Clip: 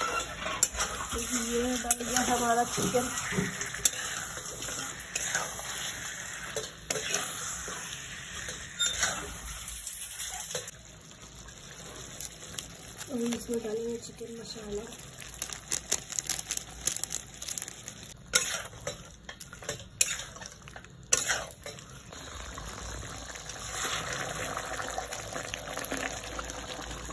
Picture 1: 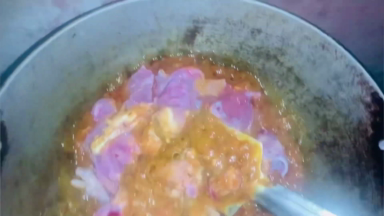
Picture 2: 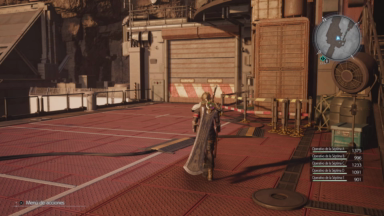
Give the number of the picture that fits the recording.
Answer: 1